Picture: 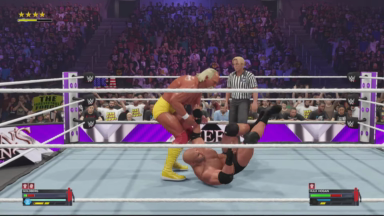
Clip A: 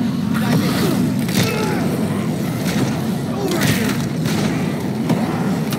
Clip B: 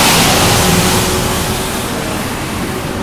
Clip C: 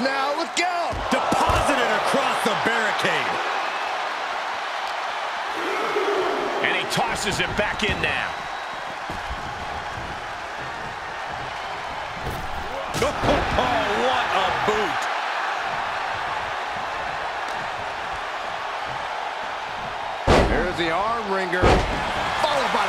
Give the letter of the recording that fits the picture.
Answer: C